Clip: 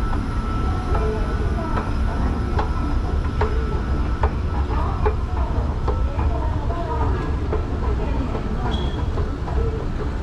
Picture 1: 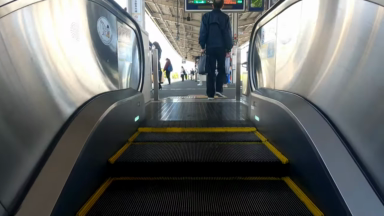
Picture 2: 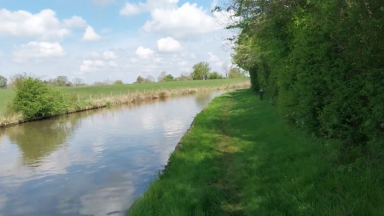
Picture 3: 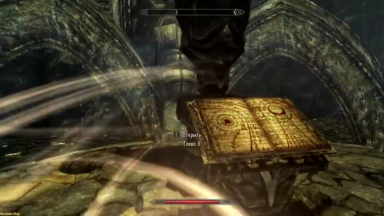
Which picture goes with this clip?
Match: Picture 1